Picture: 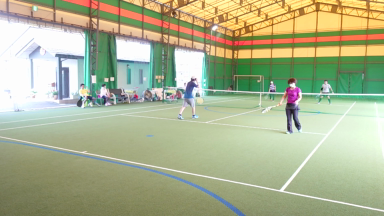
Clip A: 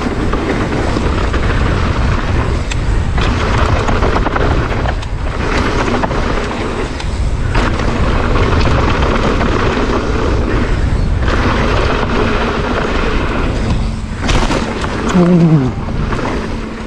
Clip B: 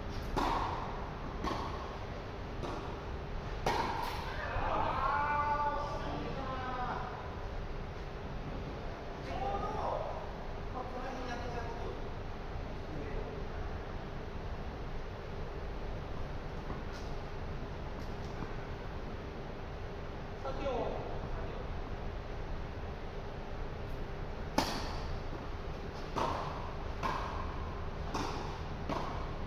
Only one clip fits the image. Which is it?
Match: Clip B